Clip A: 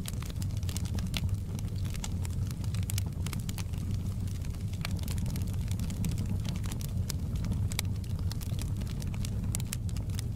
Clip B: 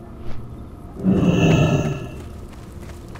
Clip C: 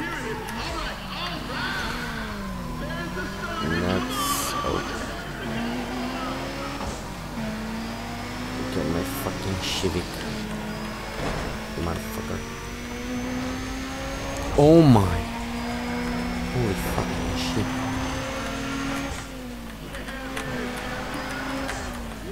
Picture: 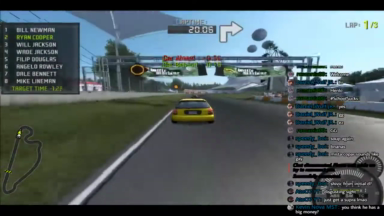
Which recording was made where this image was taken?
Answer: C